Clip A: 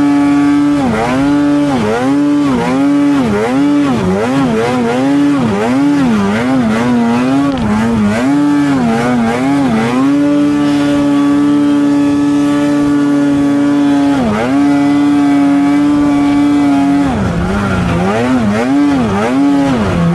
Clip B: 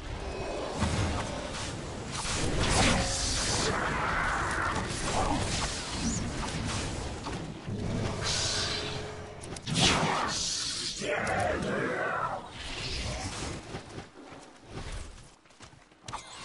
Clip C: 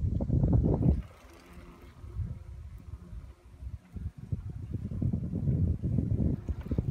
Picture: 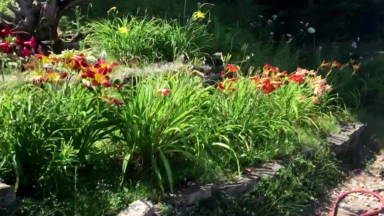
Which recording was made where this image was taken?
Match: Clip C